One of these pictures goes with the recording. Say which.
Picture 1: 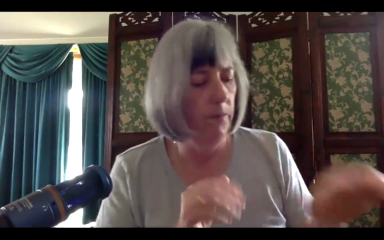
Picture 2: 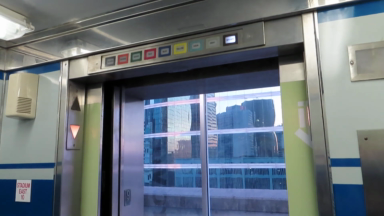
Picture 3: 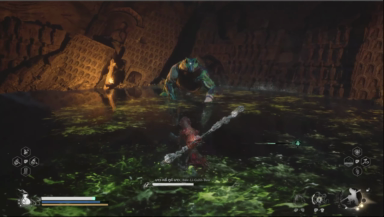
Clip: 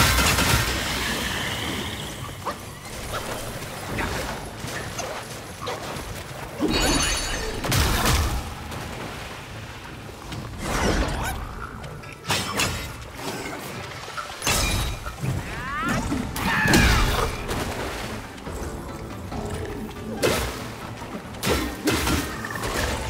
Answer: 3